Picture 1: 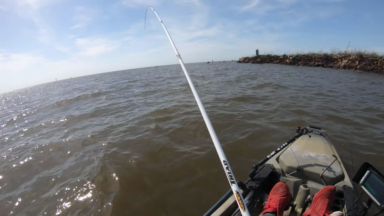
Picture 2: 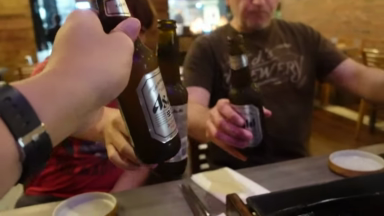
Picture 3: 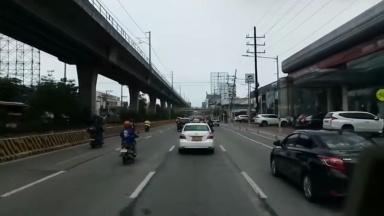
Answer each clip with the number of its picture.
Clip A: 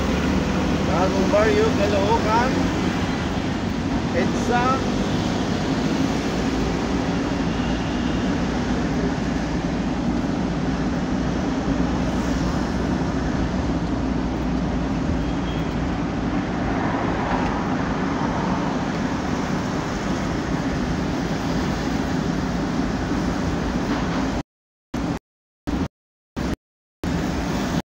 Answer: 3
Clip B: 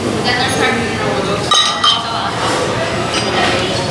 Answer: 2